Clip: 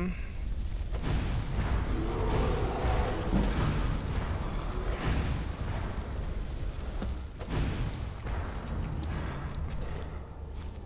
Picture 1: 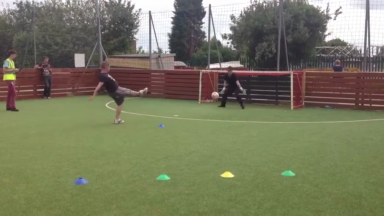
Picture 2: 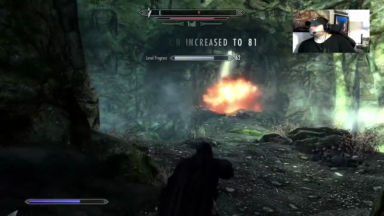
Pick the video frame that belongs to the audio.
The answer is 2